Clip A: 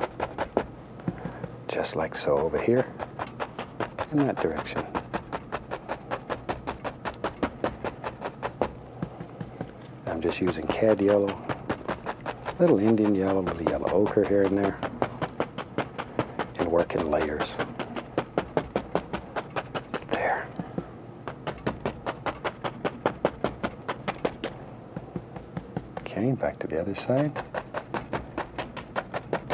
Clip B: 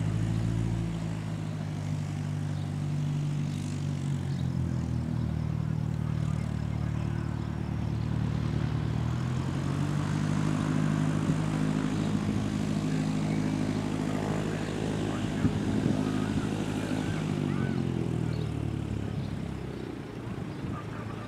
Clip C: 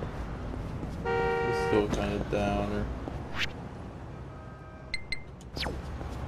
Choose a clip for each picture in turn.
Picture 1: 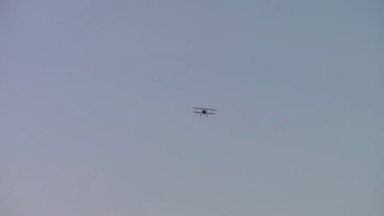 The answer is B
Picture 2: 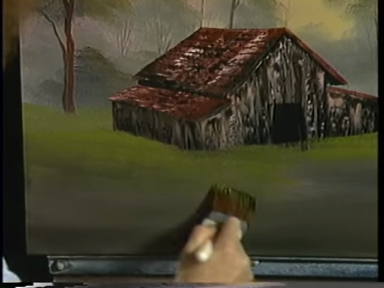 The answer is A